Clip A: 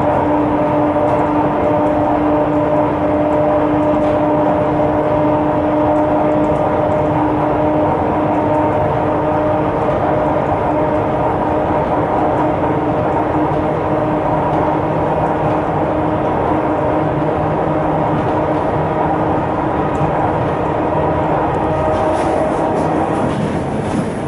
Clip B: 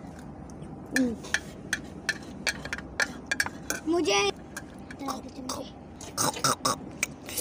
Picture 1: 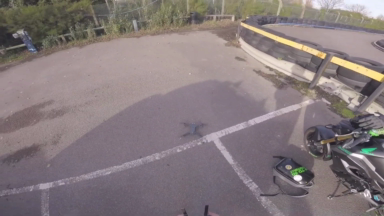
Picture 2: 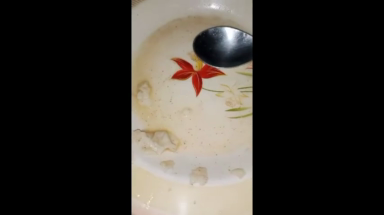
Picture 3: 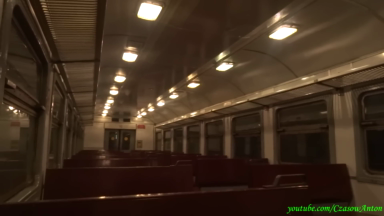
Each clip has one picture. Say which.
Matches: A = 3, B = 2